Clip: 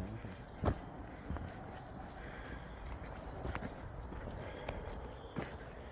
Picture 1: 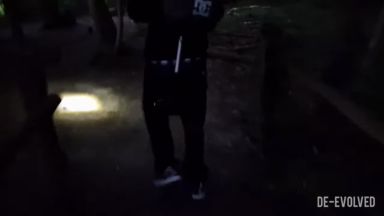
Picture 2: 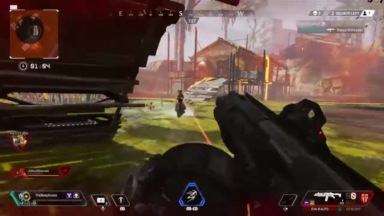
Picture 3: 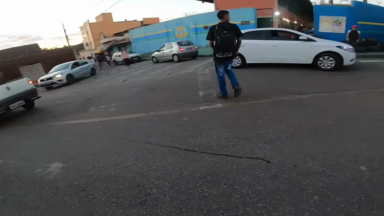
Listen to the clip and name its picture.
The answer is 1